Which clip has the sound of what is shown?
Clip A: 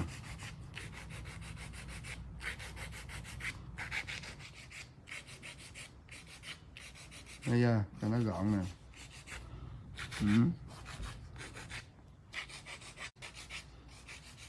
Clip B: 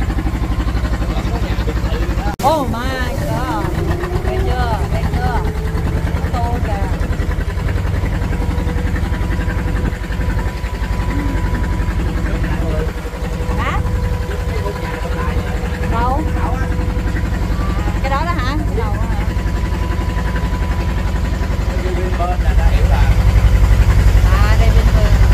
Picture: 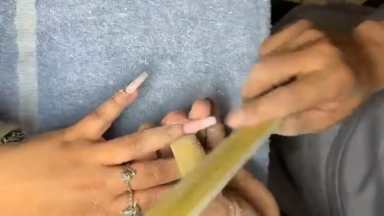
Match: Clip A